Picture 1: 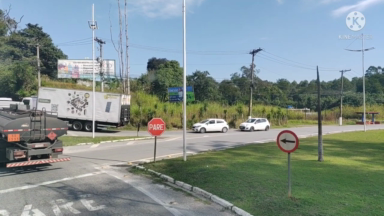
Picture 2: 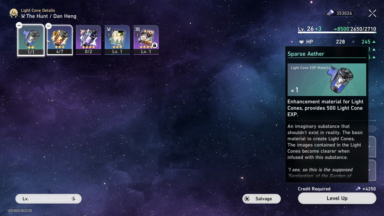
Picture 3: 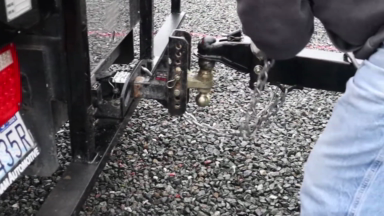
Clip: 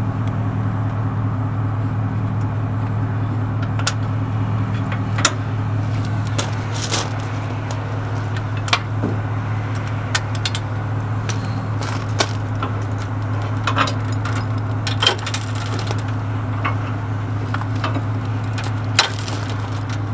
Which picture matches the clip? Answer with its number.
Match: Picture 3